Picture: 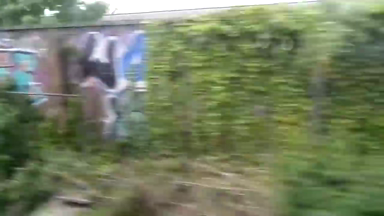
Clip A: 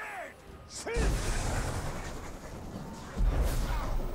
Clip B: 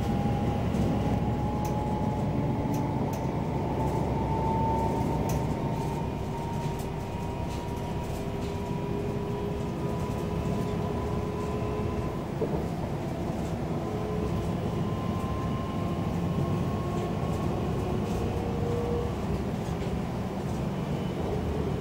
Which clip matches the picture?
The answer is B